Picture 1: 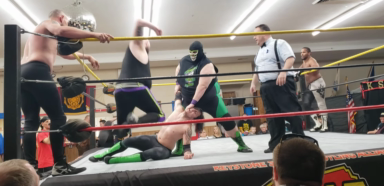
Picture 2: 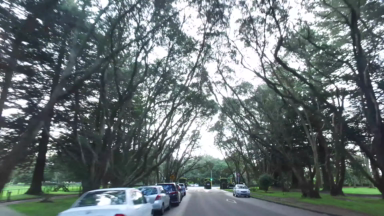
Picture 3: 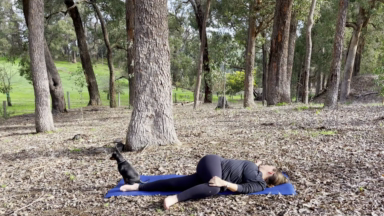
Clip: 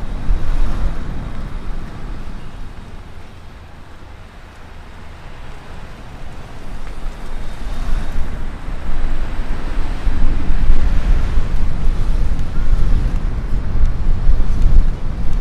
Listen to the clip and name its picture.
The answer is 2